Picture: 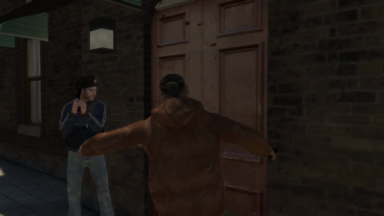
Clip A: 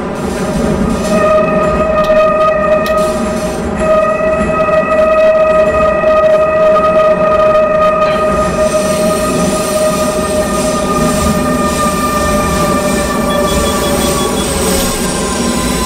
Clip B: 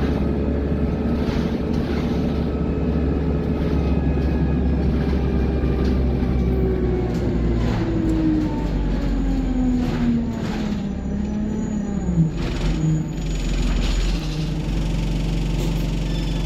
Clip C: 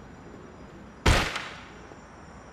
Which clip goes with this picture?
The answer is C